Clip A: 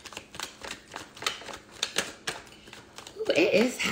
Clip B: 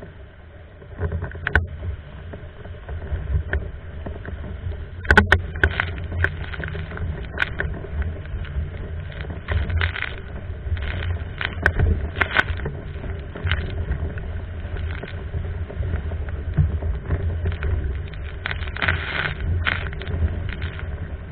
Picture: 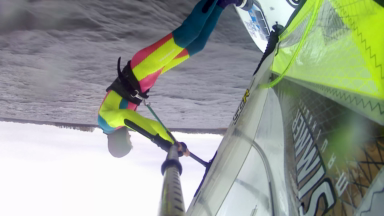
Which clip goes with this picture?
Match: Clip B